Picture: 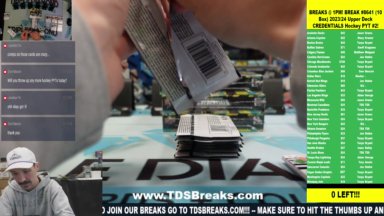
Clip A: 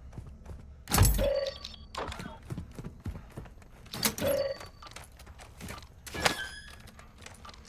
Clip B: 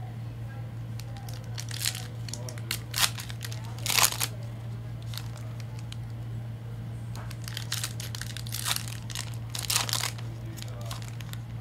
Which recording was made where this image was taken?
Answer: B